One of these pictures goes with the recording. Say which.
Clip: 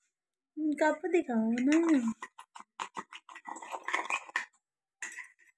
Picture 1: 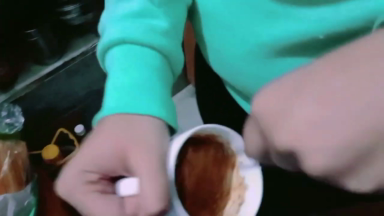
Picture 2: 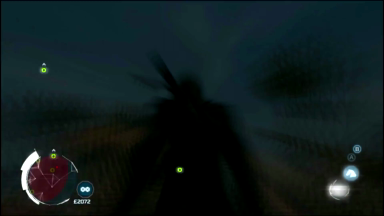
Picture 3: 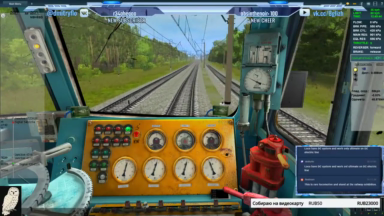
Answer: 1